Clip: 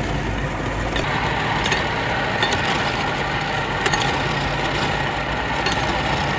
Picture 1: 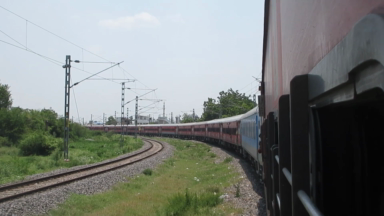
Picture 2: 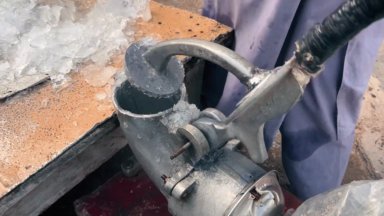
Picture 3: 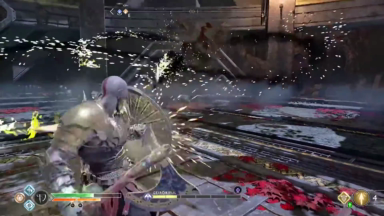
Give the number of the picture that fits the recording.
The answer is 2